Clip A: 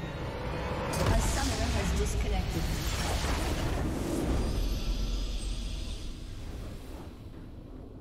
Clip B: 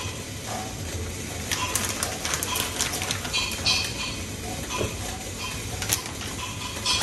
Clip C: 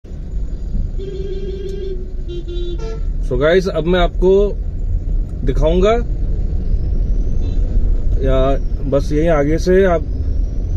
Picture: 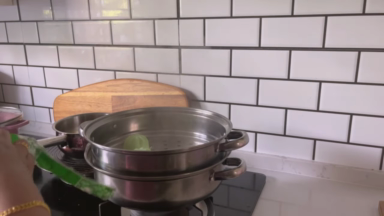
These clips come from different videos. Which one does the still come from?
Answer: B